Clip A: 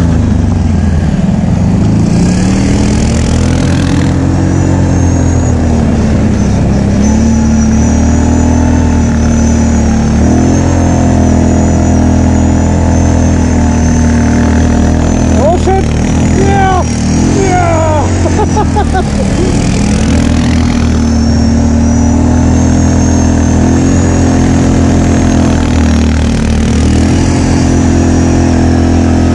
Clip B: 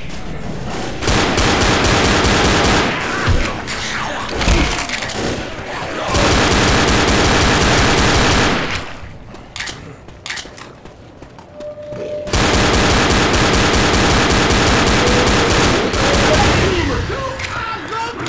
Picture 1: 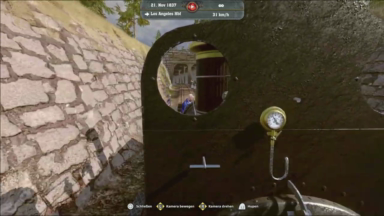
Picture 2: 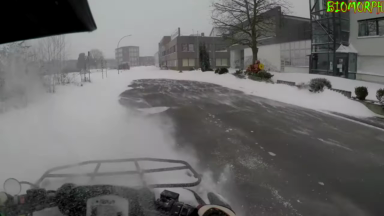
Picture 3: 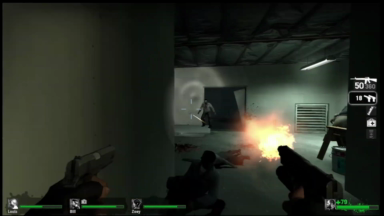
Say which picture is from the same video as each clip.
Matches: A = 2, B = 3